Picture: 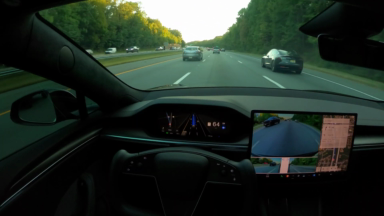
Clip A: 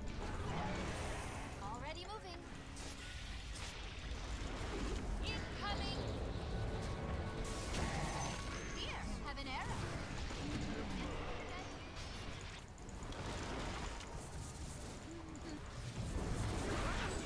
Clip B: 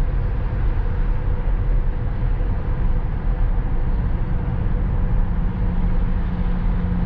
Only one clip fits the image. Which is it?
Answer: B